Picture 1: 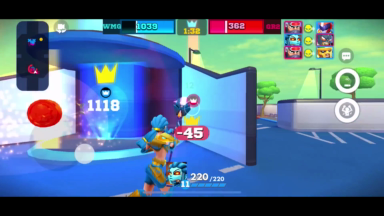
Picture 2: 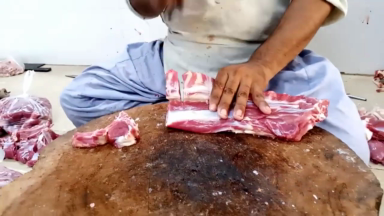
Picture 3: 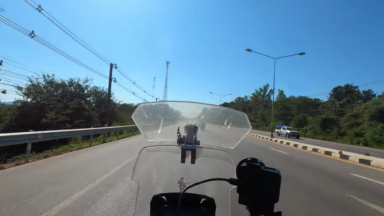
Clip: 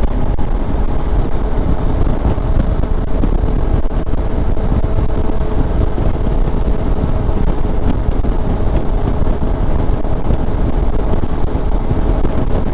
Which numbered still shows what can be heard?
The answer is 3